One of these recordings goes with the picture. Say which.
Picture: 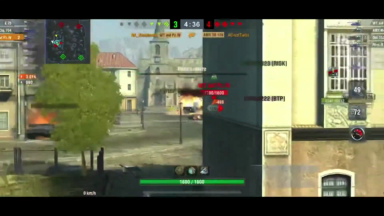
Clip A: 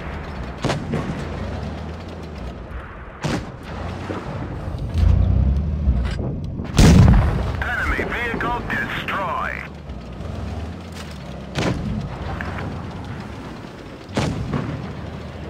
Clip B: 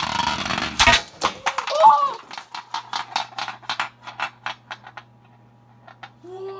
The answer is A